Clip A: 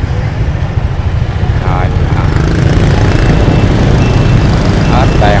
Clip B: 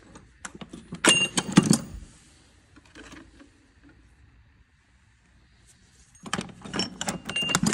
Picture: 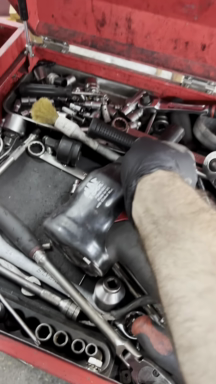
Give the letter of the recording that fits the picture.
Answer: B